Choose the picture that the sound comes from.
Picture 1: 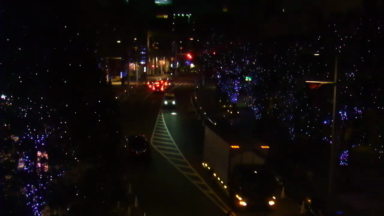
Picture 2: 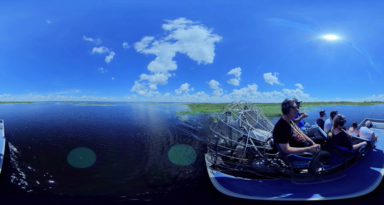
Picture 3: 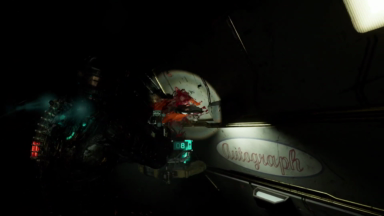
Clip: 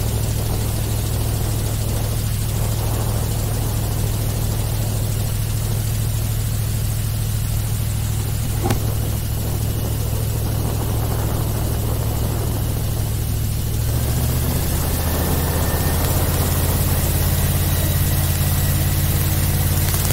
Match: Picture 2